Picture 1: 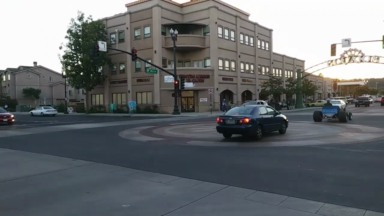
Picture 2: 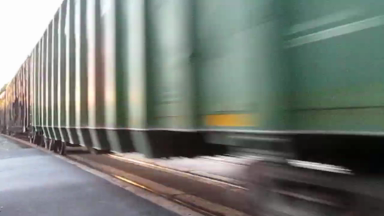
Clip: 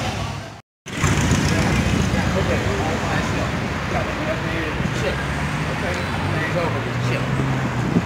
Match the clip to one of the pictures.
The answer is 1